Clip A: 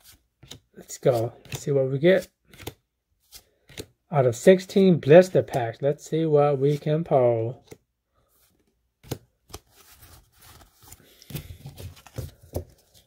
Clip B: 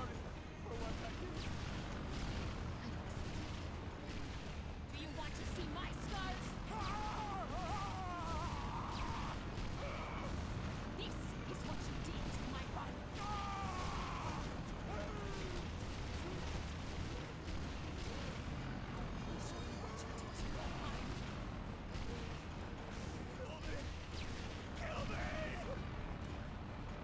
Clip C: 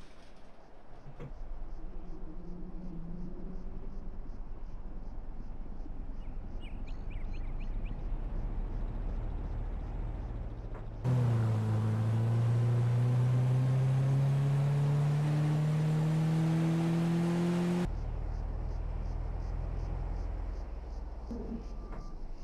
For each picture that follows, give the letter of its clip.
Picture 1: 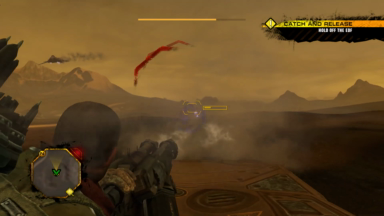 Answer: B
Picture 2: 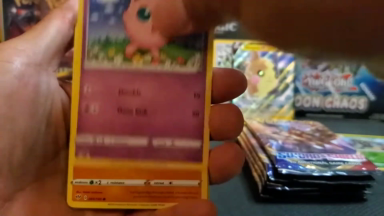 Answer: A